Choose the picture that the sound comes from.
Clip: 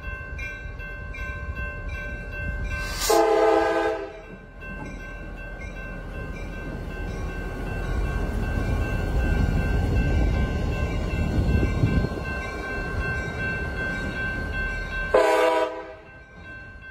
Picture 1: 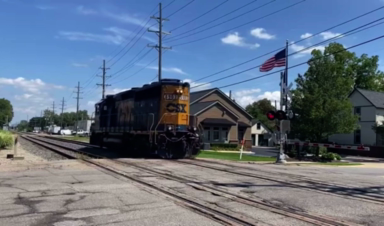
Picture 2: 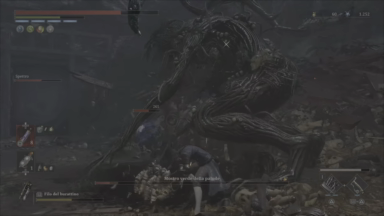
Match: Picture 1